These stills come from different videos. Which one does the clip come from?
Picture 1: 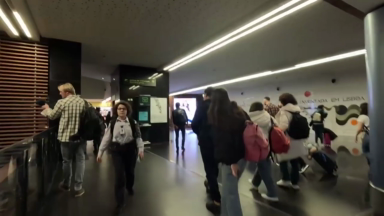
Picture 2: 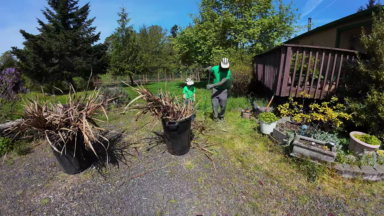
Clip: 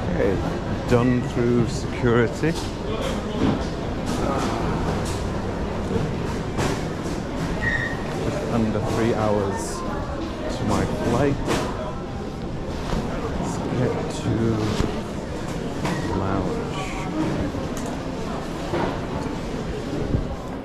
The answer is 1